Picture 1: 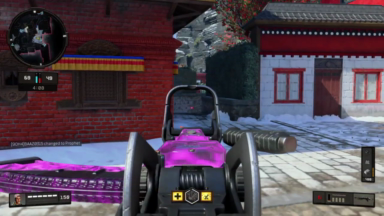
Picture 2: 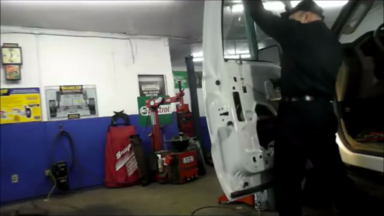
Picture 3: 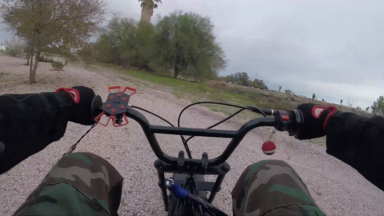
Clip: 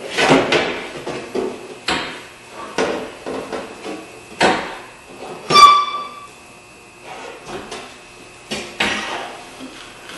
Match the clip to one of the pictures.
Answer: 2